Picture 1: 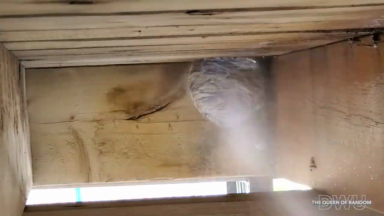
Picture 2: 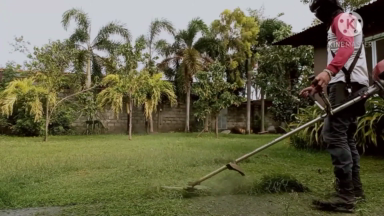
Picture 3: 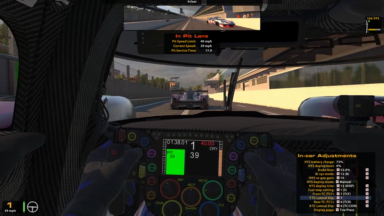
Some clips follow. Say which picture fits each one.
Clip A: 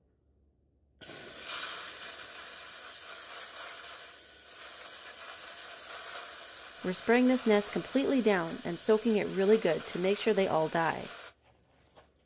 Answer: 1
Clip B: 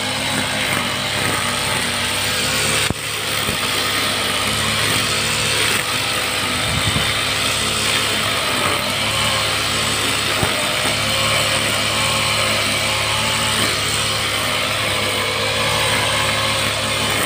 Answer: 2